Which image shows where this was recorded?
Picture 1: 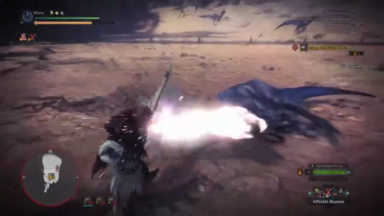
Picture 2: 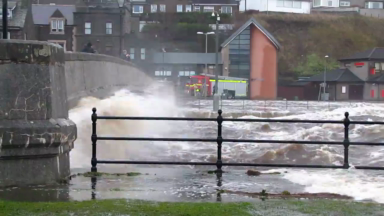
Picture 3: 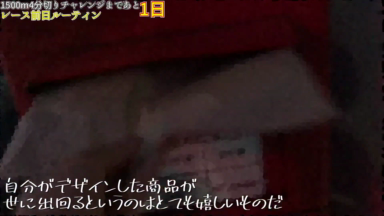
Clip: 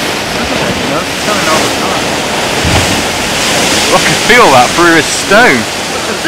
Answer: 2